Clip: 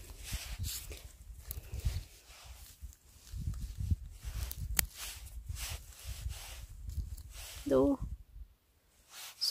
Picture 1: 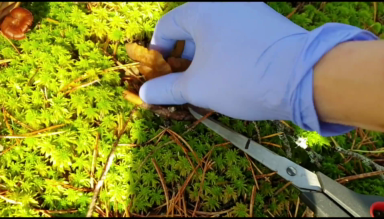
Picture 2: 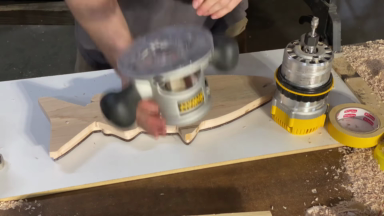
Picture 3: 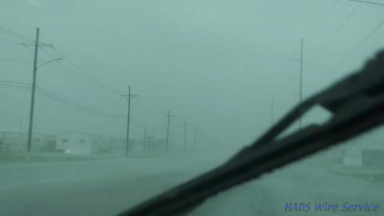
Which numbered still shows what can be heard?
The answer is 1